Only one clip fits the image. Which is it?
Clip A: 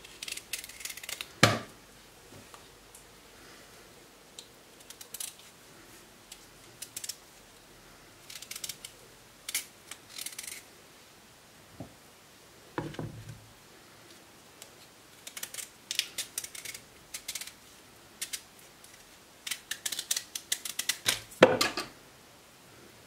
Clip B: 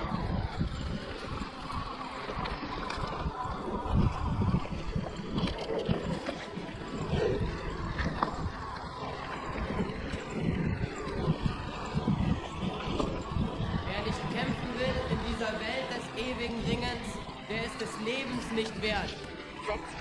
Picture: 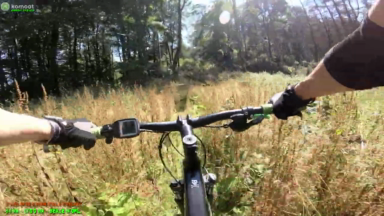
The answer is B